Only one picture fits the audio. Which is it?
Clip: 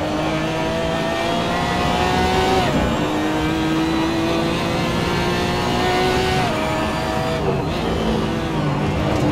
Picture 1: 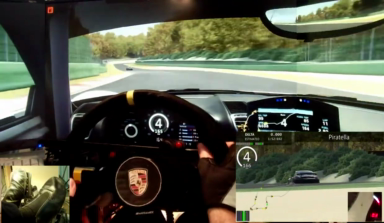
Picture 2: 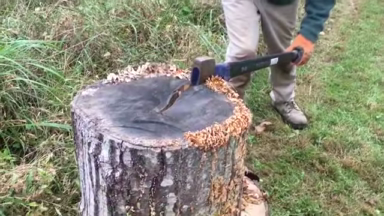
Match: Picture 1